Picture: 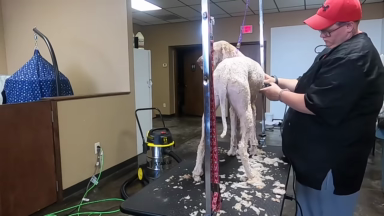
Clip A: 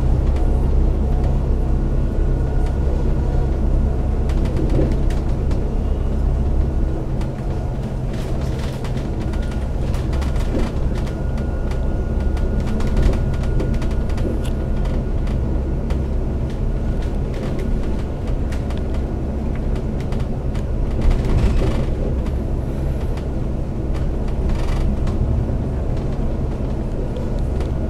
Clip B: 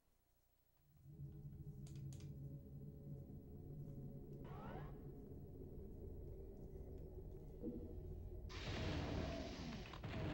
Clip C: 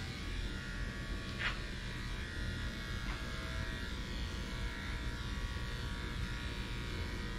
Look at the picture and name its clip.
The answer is C